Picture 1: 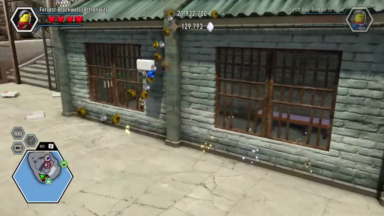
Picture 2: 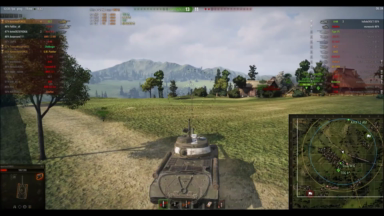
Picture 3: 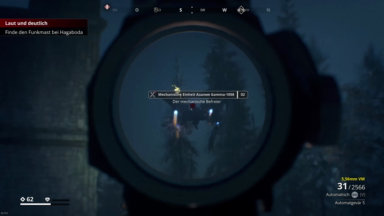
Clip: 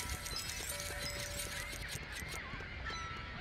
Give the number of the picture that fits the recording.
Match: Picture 1